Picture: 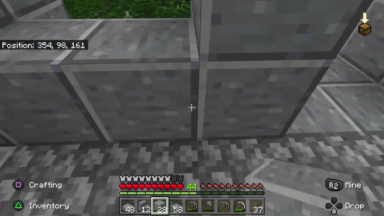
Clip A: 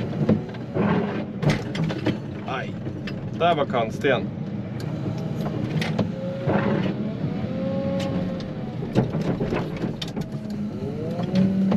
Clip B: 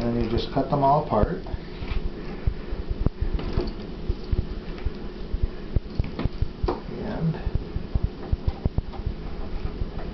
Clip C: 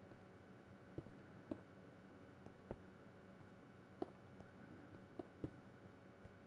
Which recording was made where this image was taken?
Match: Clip C